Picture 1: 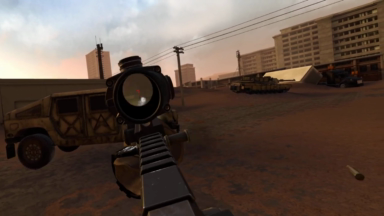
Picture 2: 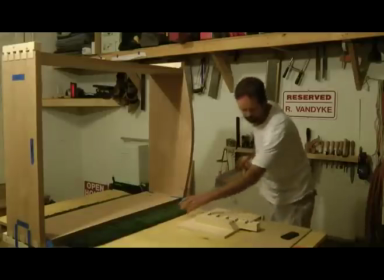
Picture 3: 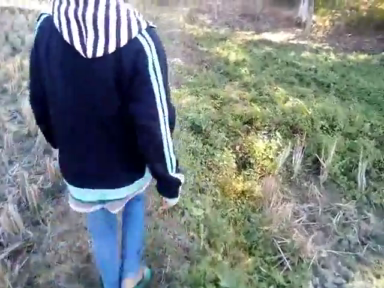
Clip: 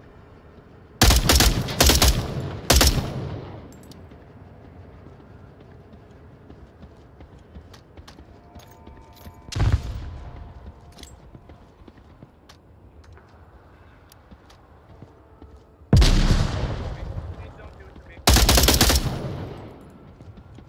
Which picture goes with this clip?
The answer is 1